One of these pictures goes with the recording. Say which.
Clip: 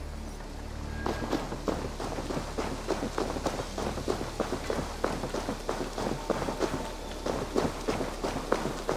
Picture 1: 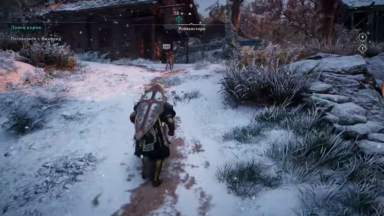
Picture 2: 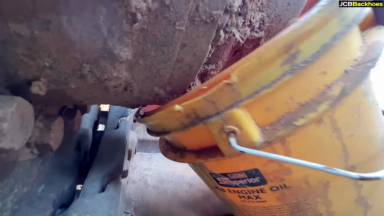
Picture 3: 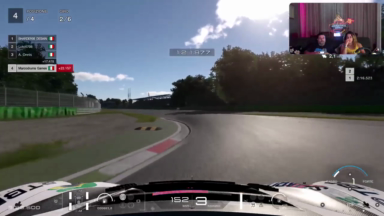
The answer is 1